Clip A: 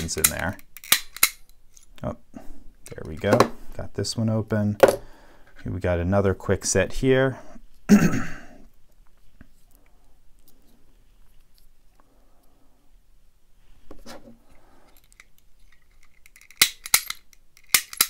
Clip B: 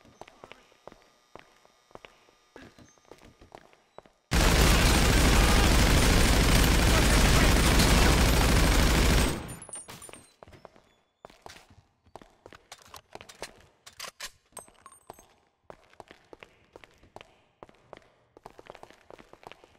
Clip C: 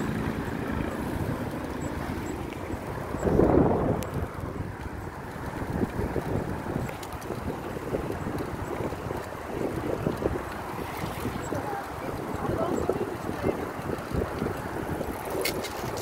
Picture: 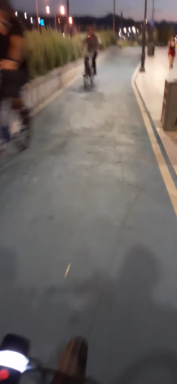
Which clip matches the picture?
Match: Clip C